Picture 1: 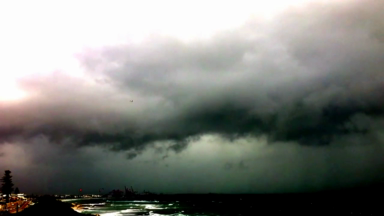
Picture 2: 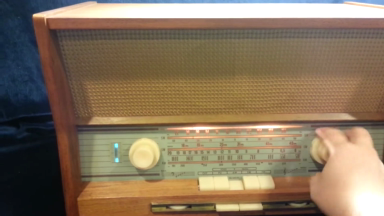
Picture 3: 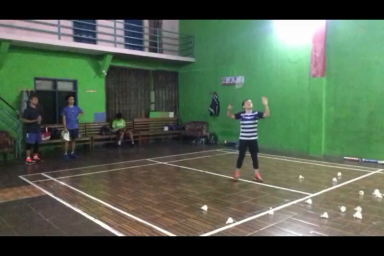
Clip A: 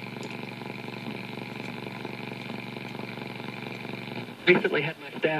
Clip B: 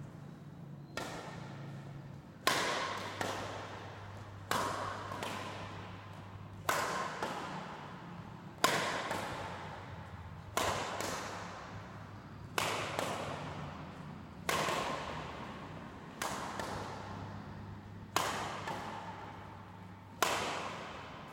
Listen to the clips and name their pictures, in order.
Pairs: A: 2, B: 3